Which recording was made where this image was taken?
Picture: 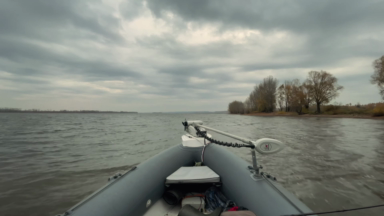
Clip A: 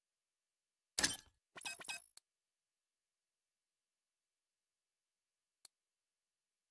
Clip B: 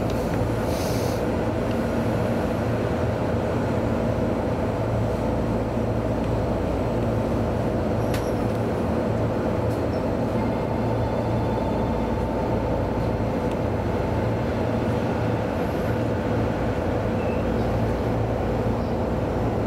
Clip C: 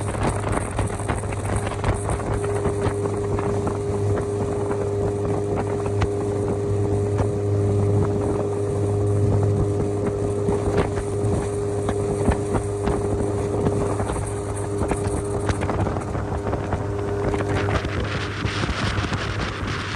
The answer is C